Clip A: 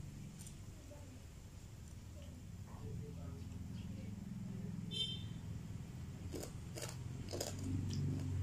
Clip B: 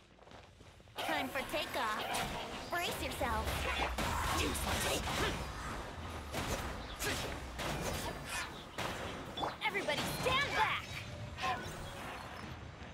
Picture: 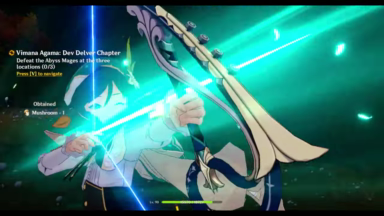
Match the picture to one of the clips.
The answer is B